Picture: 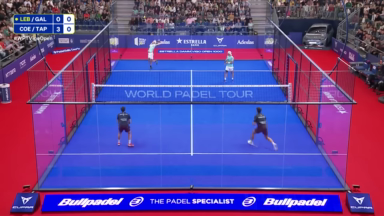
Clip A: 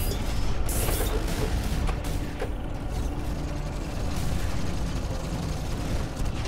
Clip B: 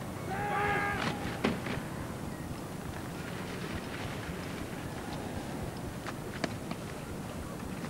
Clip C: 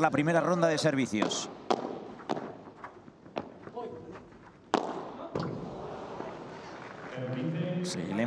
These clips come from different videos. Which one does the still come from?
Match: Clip C